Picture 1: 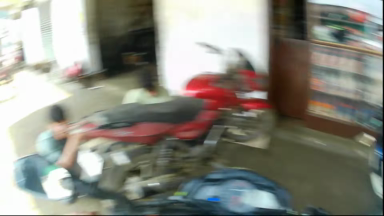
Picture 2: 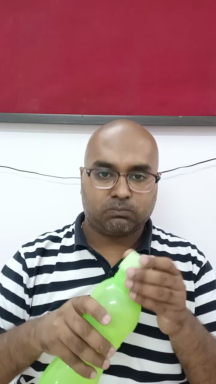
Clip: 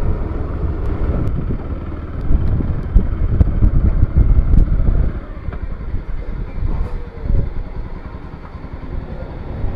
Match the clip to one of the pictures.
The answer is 1